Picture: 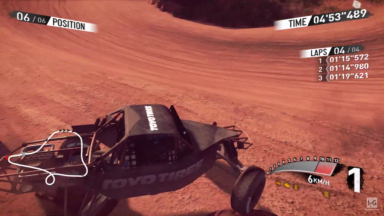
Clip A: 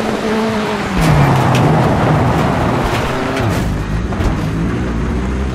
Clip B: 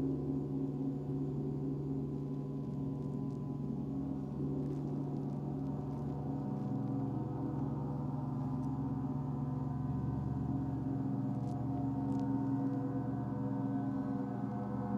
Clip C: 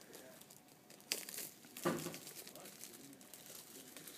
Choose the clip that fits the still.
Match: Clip A